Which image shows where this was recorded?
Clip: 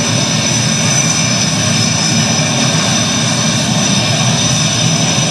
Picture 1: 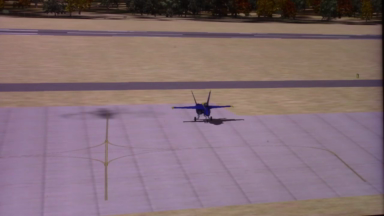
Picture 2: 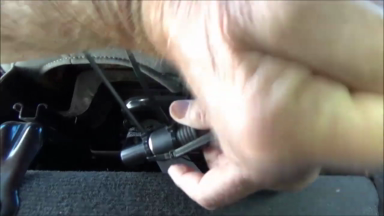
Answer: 1